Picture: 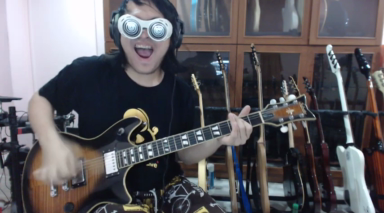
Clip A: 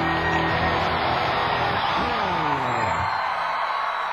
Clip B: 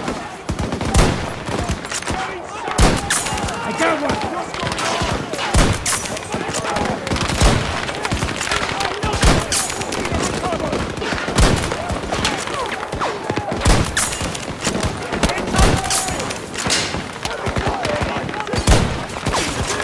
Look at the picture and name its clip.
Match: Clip A